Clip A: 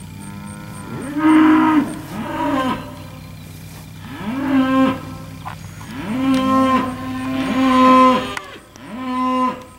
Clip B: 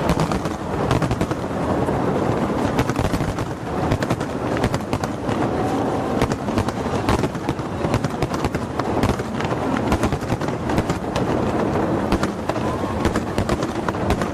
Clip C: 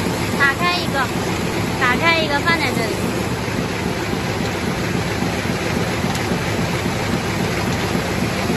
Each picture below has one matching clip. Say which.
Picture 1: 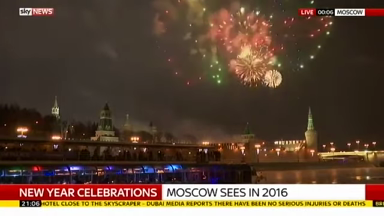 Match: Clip B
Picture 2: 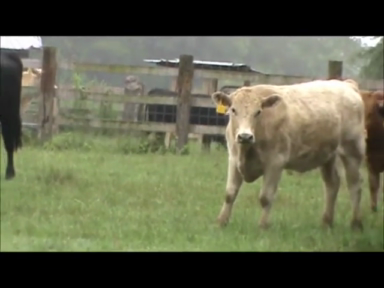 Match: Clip A